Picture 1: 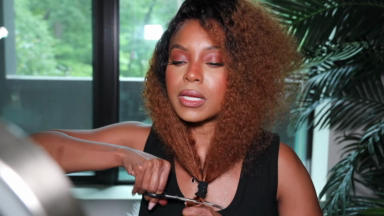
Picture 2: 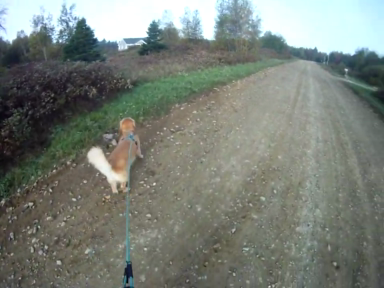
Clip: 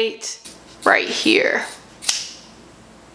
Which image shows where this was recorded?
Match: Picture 1